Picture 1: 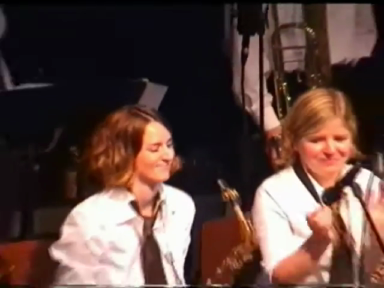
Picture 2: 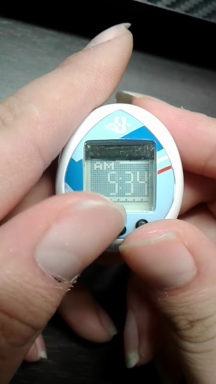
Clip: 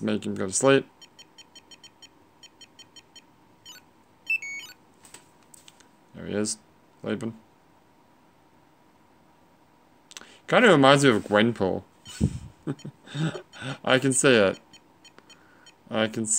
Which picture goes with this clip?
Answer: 2